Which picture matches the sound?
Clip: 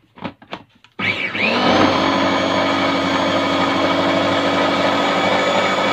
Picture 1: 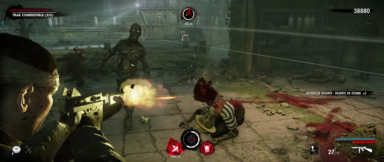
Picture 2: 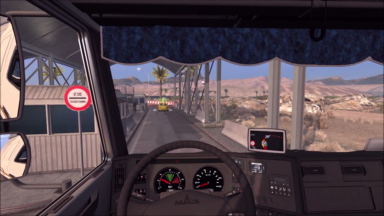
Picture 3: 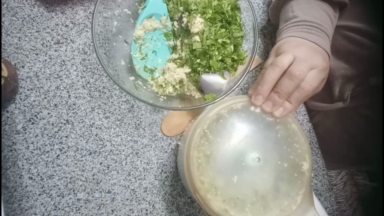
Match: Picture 3